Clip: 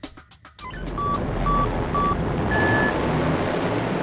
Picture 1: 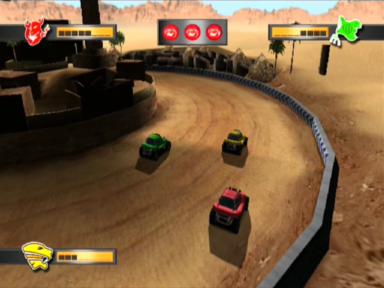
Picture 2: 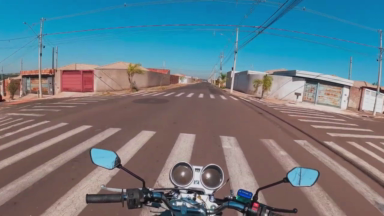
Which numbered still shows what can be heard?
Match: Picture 1